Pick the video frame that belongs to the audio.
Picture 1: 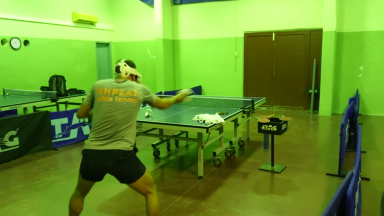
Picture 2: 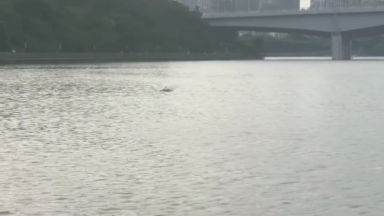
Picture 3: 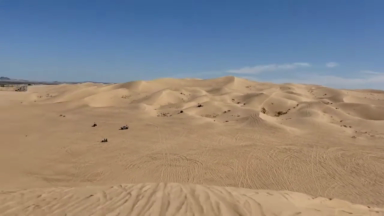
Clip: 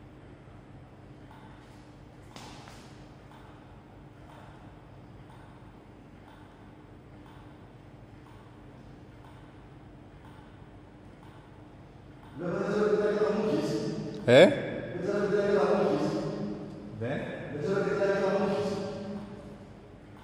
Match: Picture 1